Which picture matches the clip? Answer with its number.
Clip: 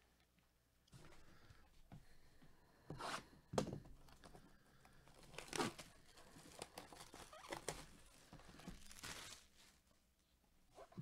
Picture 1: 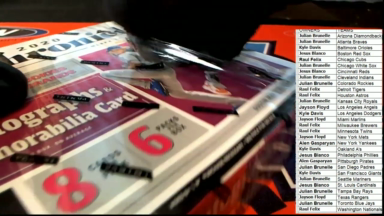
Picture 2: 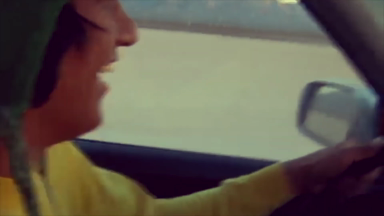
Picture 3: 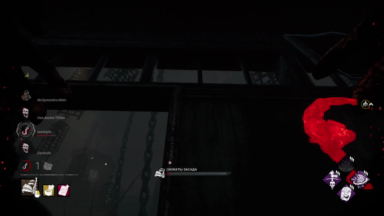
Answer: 1